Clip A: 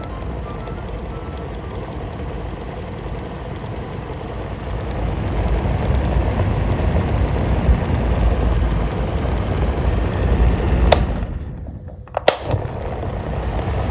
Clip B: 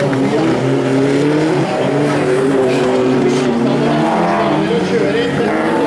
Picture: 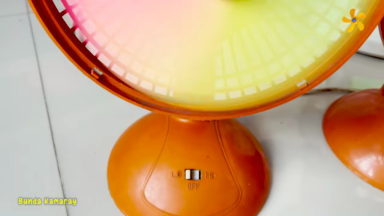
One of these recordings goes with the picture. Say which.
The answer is A